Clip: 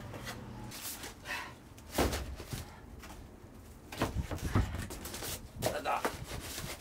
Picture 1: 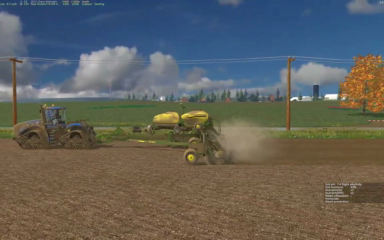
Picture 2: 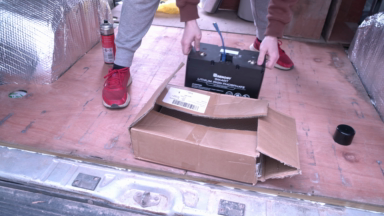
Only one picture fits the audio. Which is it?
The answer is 2